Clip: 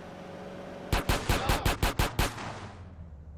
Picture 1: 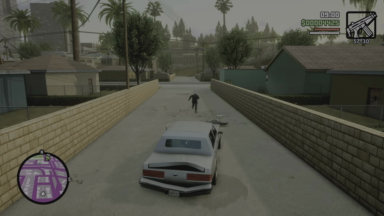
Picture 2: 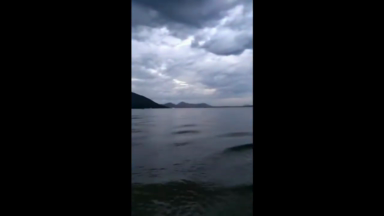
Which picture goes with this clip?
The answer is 1